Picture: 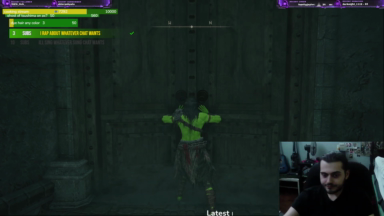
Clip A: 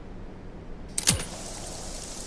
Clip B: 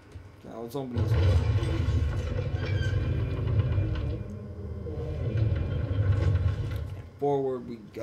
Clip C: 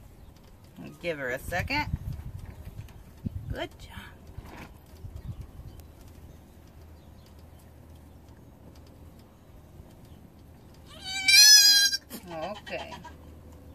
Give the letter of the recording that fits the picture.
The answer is B